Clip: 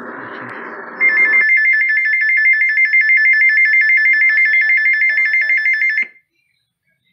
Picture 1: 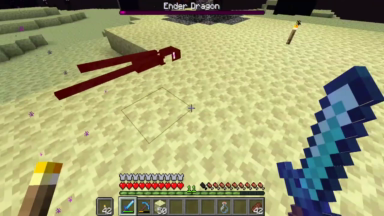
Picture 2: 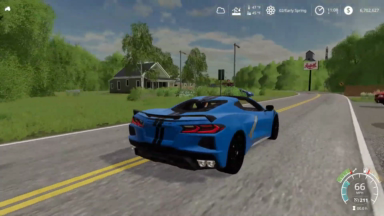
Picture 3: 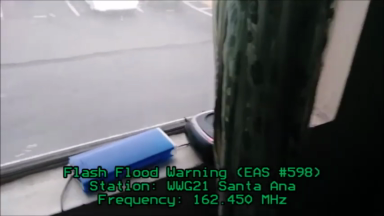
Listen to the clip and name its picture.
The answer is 3